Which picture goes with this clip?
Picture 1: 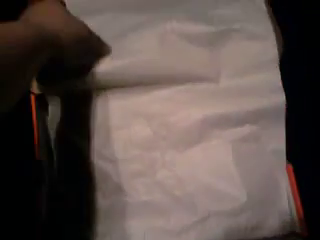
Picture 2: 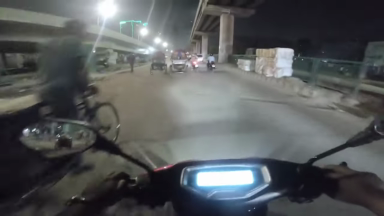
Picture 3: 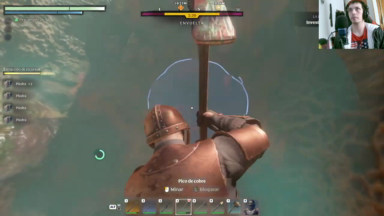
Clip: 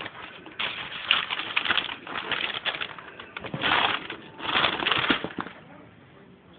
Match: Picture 1